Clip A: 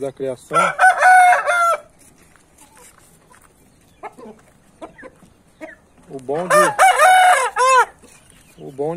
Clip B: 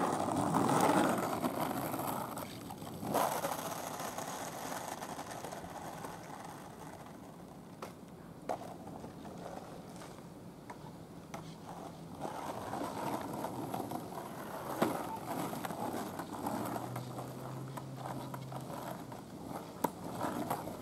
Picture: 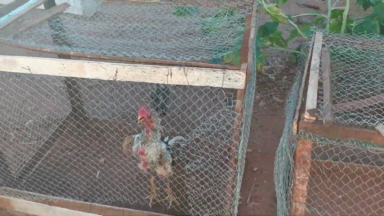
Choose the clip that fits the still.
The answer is A